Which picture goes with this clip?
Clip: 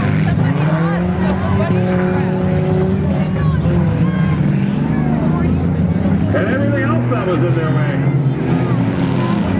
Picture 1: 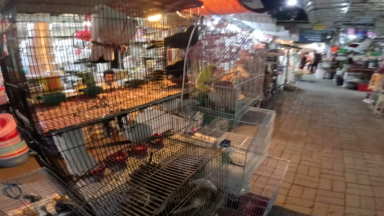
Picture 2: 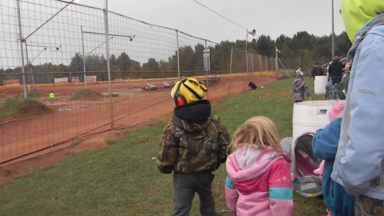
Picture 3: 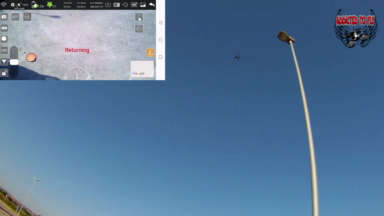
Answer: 2